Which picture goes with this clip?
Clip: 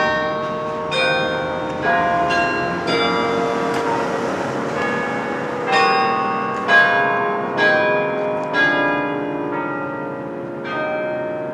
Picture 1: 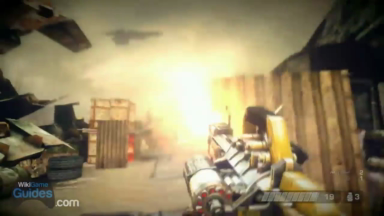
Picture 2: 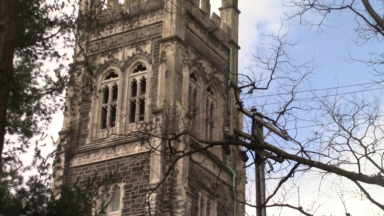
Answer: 2